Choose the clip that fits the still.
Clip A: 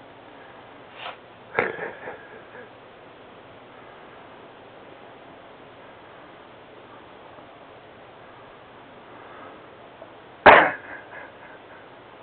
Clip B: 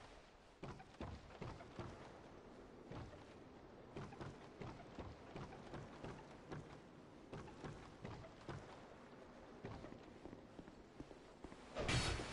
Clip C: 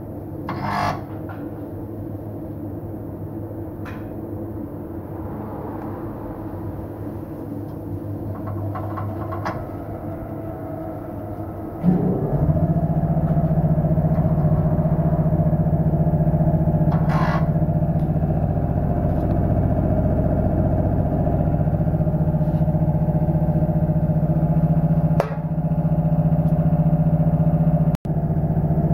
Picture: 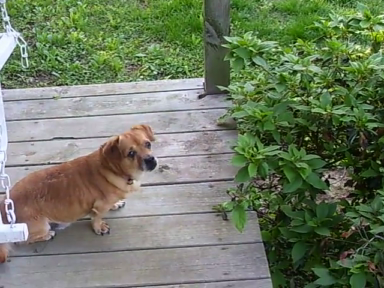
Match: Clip A